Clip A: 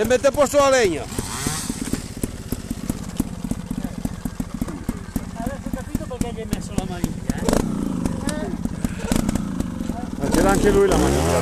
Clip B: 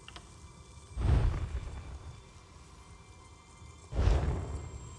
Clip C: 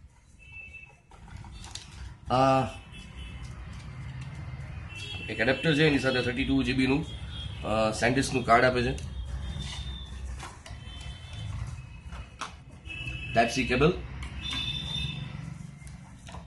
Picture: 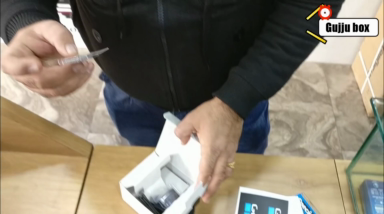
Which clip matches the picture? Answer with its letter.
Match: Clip C